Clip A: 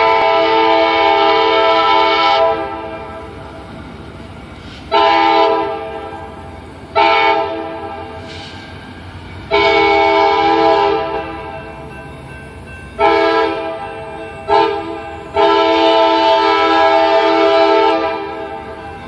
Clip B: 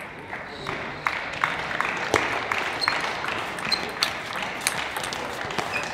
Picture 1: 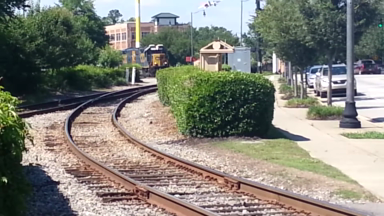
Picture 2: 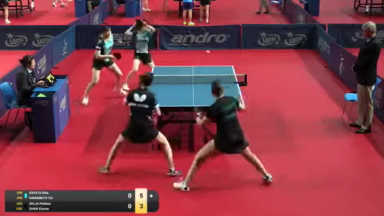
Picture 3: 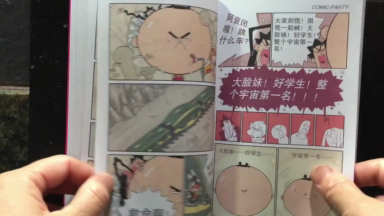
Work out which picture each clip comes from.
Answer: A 1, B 2